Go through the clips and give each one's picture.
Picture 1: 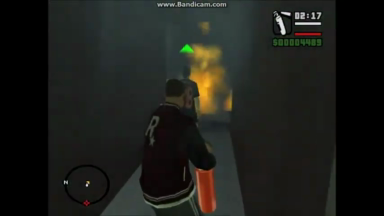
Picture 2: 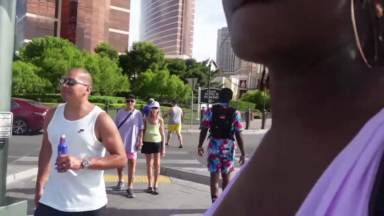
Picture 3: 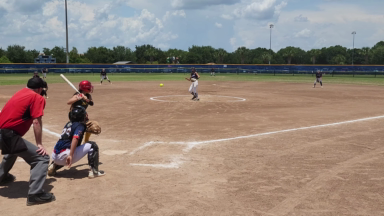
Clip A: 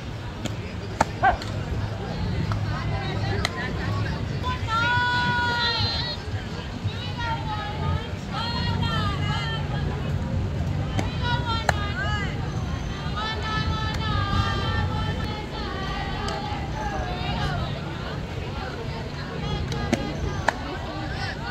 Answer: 3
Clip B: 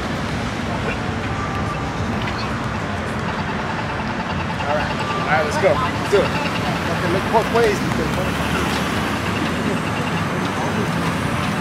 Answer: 2